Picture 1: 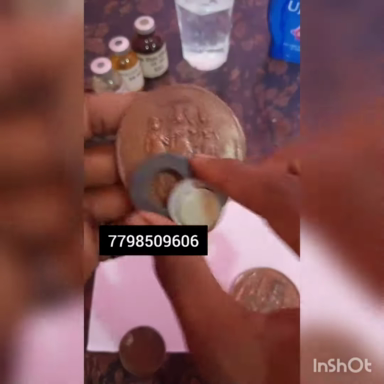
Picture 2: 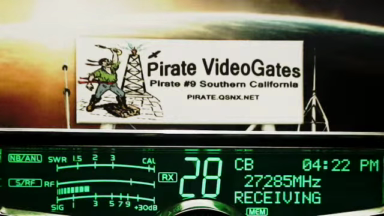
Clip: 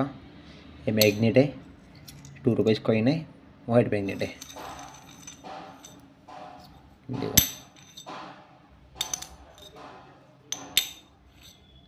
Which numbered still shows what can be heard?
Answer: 1